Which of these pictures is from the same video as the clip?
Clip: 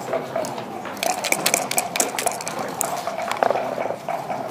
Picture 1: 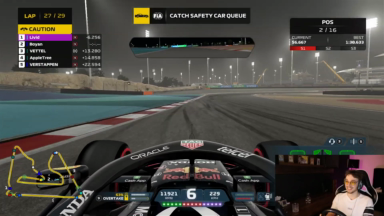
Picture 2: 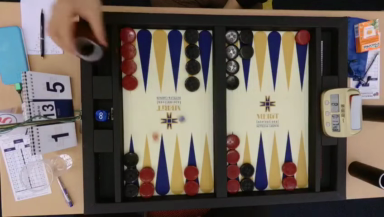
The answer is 2